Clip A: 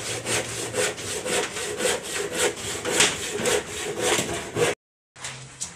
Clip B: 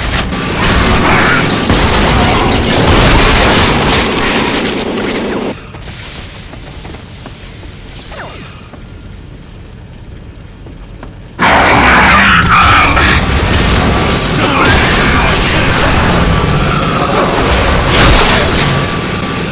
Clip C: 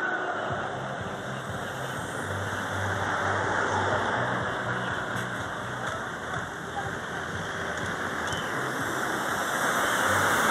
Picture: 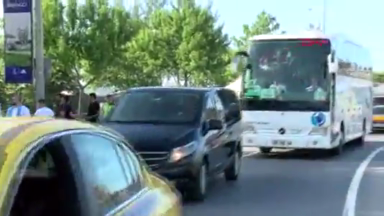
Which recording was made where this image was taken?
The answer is C